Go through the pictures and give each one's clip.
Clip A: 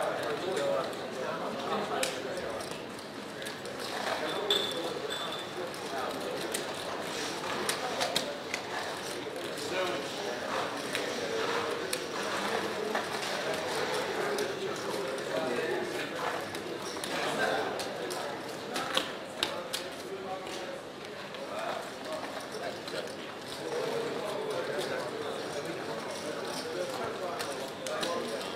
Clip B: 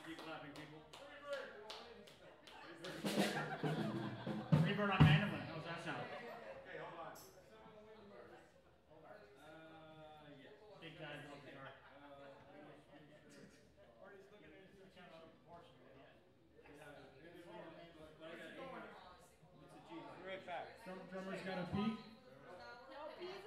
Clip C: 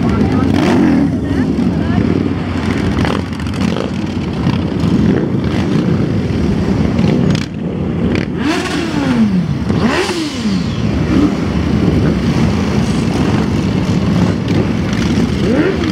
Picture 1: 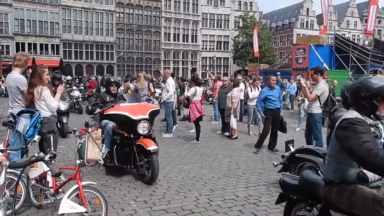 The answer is C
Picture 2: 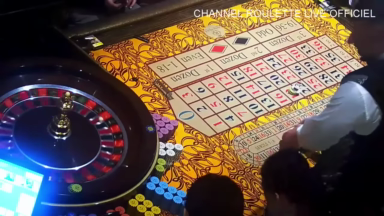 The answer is A